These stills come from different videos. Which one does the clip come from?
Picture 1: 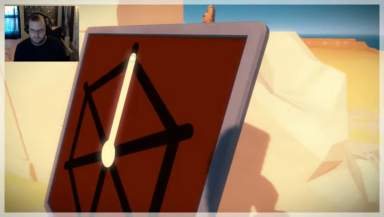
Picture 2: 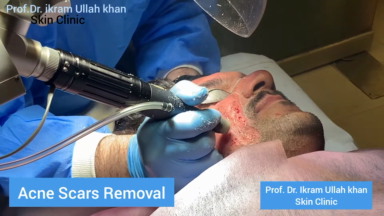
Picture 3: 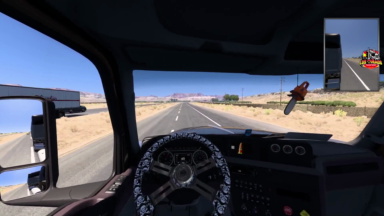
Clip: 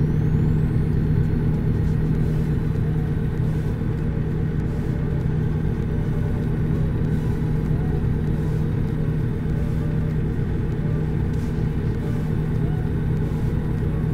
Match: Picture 3